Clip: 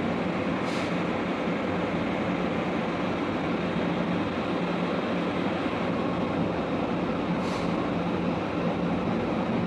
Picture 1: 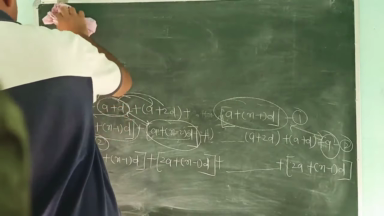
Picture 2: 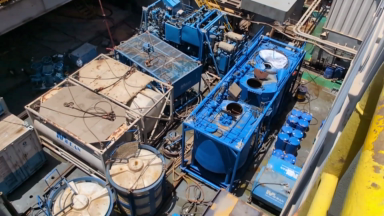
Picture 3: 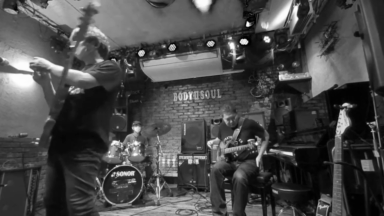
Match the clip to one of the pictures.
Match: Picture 2